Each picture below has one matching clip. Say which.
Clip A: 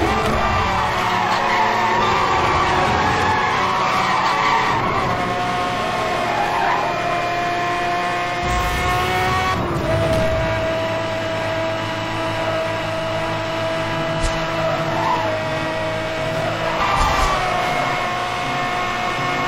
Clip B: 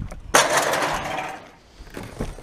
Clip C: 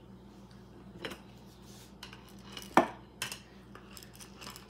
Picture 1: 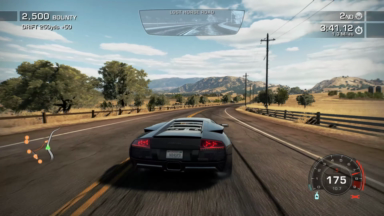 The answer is A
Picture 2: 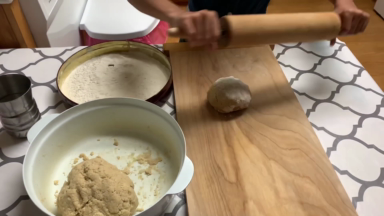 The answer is C